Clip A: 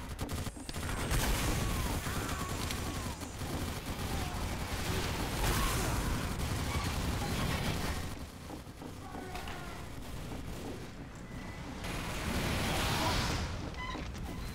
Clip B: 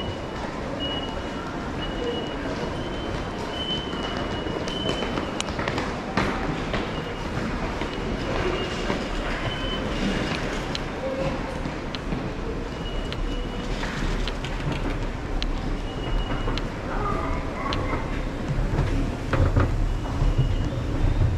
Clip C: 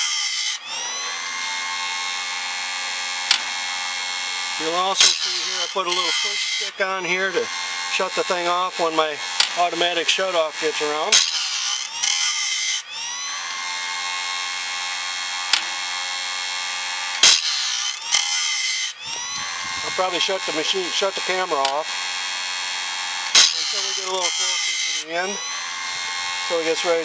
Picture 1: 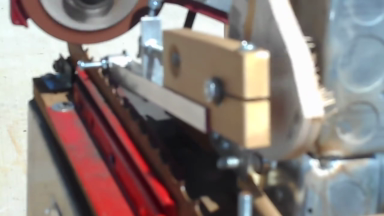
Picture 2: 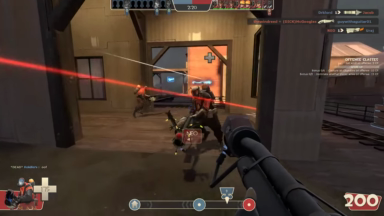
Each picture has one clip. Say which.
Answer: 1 C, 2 A